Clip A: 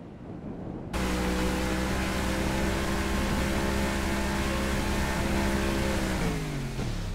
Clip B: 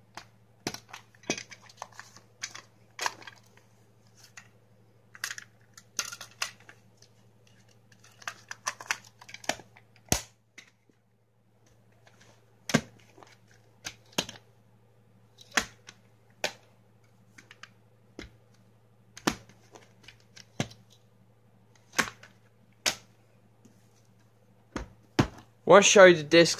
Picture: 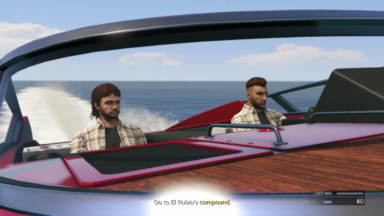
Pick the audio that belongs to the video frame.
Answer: A